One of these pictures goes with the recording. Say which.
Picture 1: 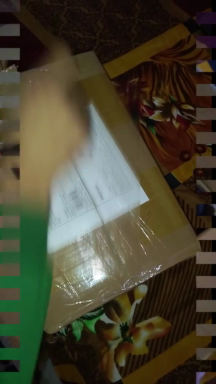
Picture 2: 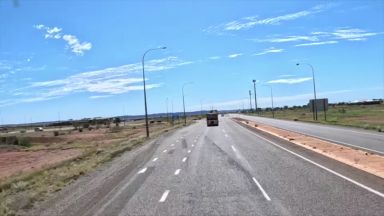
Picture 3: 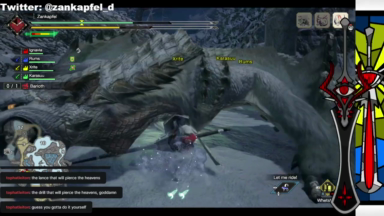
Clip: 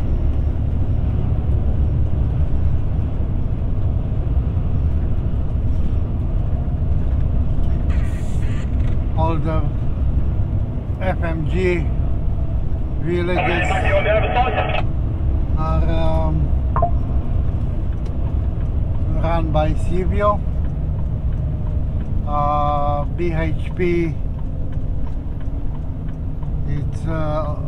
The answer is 2